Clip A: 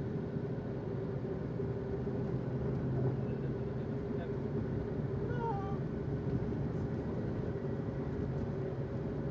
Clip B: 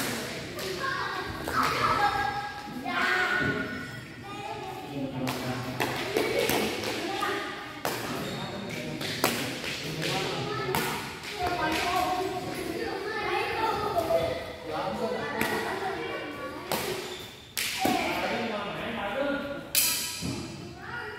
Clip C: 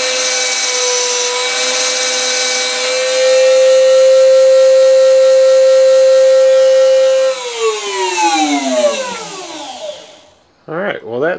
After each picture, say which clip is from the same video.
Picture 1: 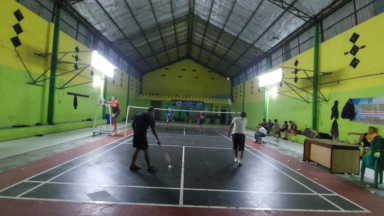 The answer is B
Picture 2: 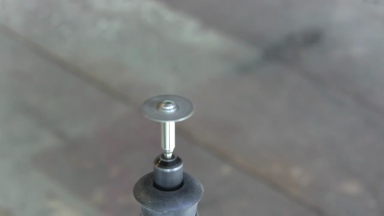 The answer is C